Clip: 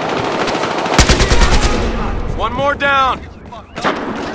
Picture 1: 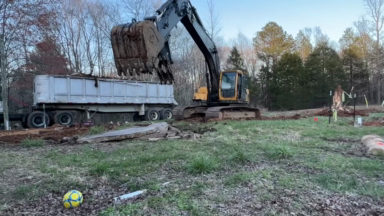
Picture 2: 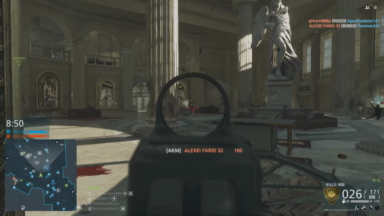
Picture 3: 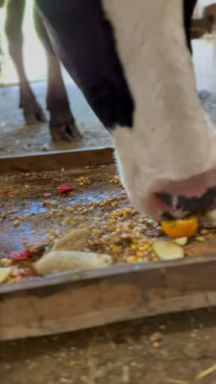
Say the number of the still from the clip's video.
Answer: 2